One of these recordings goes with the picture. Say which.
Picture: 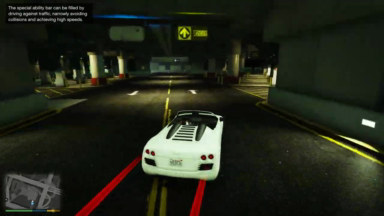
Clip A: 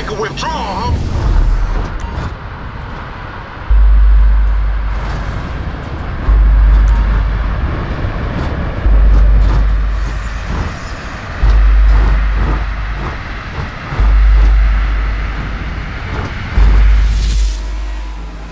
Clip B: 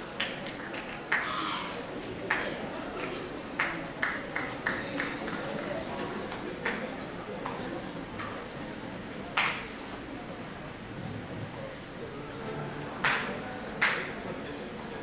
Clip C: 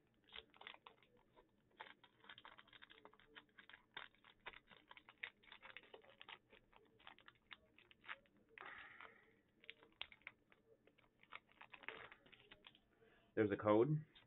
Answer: A